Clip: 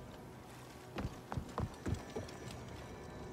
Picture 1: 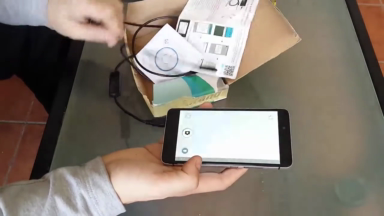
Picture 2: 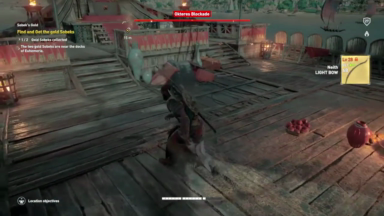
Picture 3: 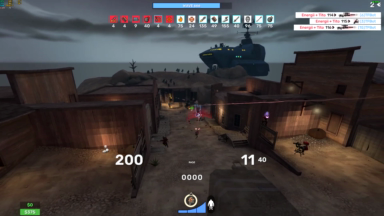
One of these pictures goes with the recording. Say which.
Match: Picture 2